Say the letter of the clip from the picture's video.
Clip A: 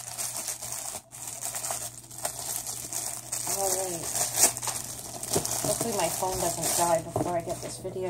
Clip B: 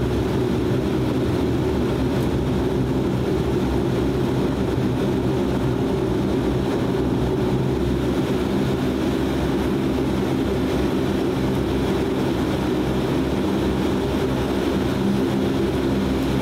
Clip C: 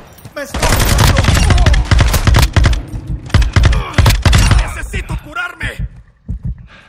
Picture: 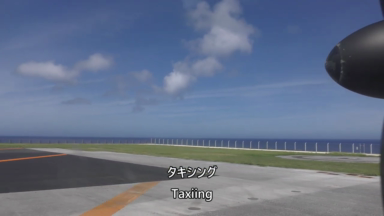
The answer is B